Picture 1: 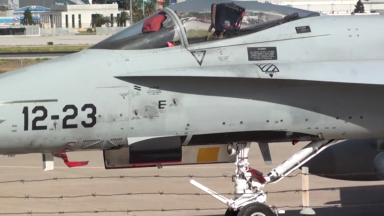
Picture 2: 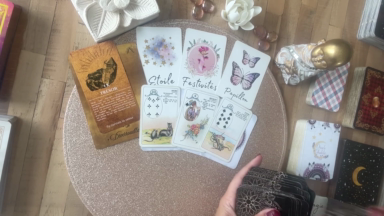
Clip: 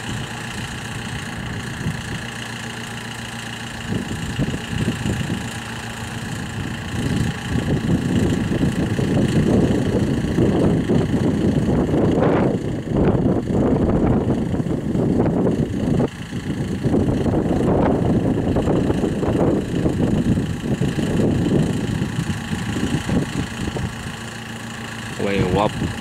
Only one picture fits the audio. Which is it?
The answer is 1